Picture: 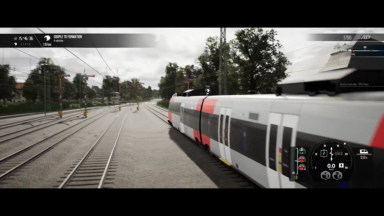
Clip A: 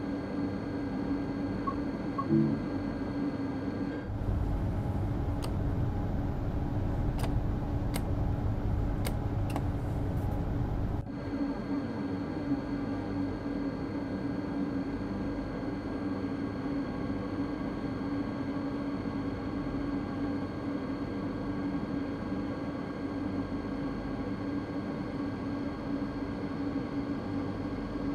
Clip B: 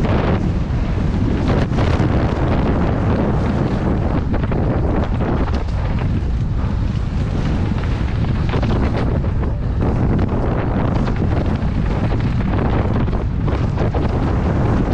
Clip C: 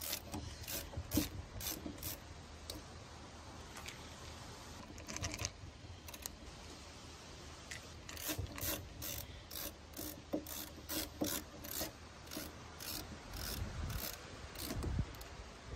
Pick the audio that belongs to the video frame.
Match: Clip A